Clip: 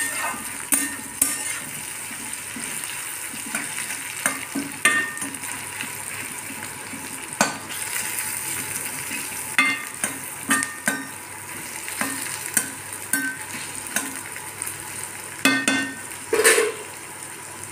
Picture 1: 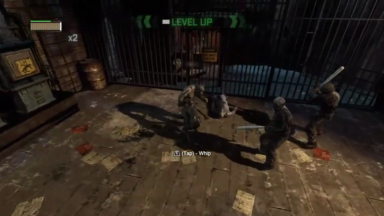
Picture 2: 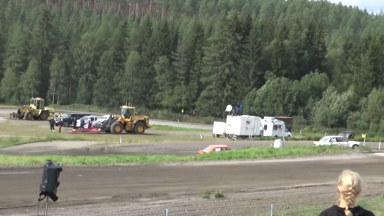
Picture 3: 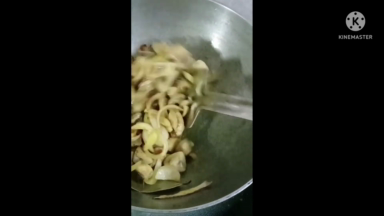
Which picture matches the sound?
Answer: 3